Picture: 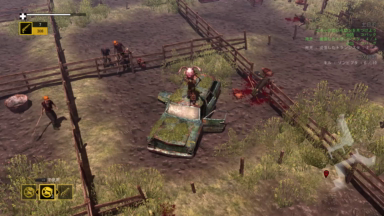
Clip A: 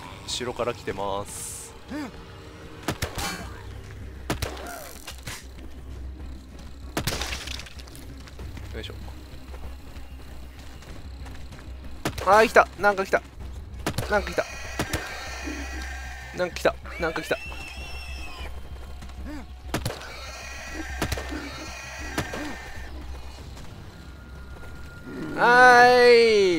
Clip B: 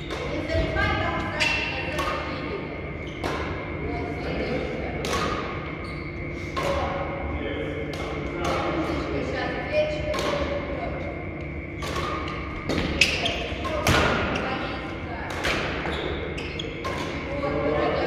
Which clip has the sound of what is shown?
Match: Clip A